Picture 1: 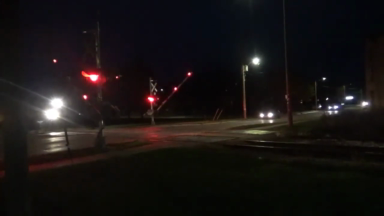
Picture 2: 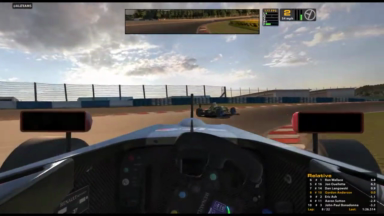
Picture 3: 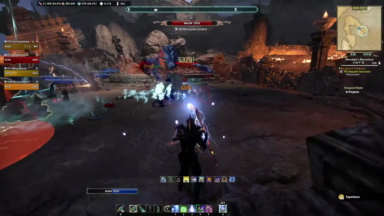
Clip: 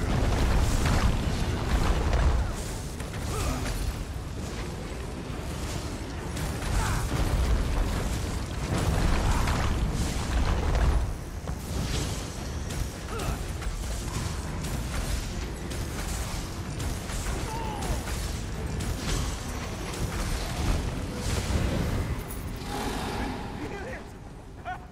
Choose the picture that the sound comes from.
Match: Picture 3